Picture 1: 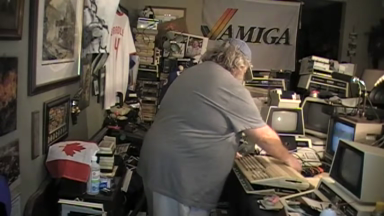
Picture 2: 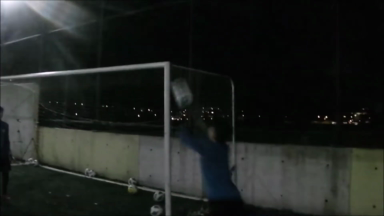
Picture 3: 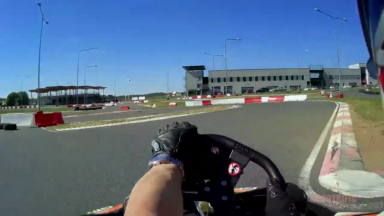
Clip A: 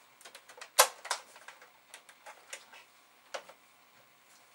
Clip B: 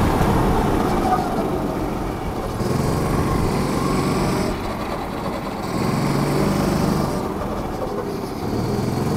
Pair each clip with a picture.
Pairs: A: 1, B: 3